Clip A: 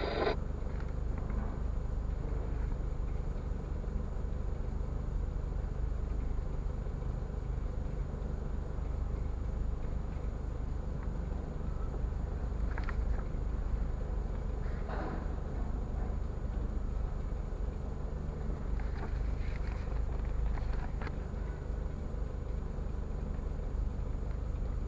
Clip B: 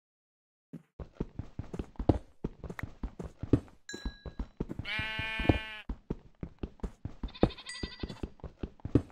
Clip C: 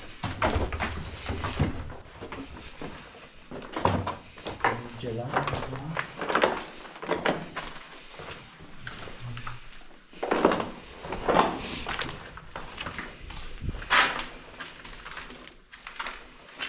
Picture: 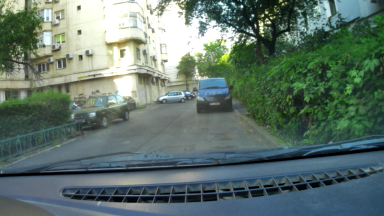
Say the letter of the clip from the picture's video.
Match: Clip A